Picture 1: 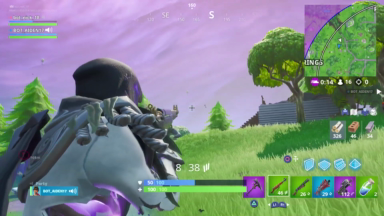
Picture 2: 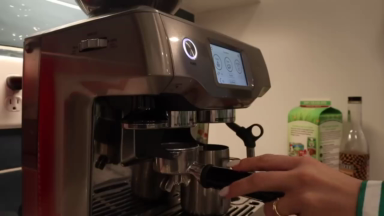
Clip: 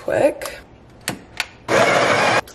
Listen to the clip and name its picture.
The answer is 2